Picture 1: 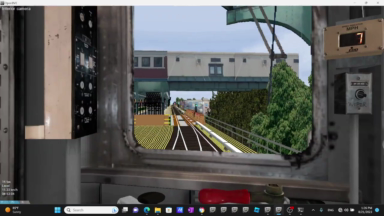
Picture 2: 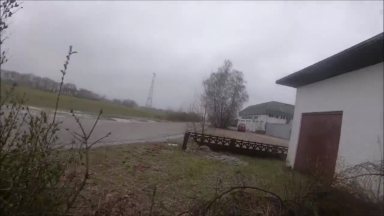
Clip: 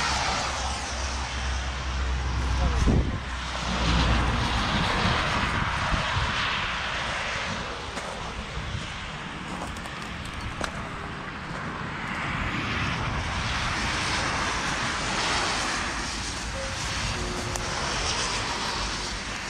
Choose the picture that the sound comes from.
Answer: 2